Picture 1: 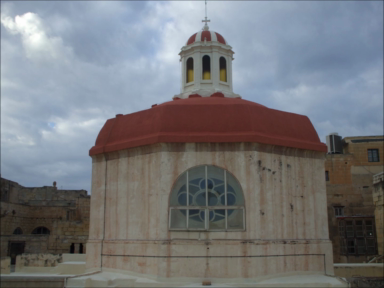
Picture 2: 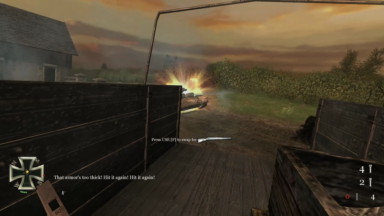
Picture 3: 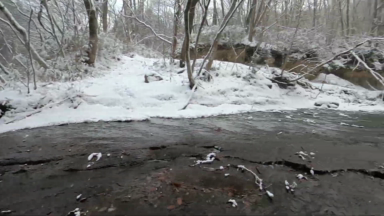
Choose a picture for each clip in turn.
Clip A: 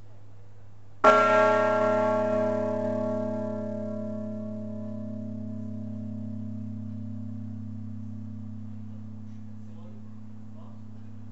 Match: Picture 1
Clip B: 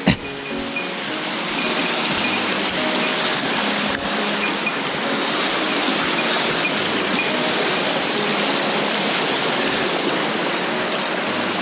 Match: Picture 3